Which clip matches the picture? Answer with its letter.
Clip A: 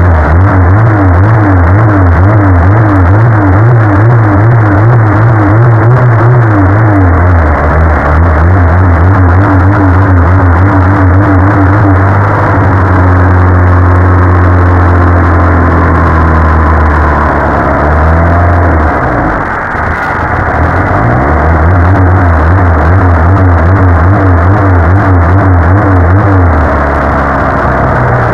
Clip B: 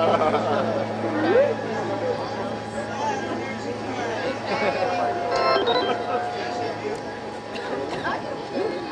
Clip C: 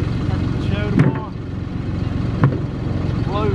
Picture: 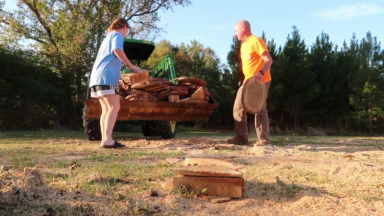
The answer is C